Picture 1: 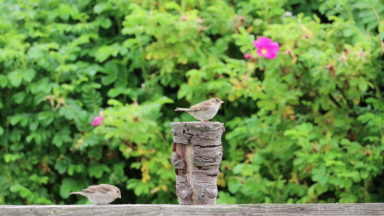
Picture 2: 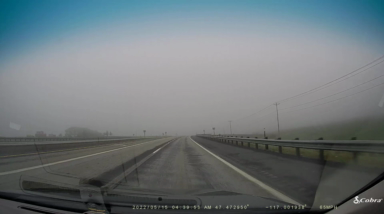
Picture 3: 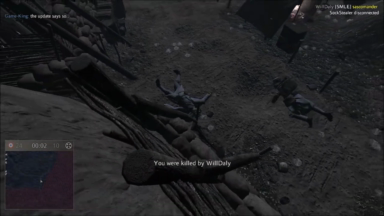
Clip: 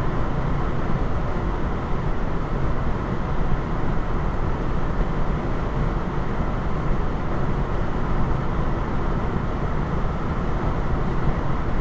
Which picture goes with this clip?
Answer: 2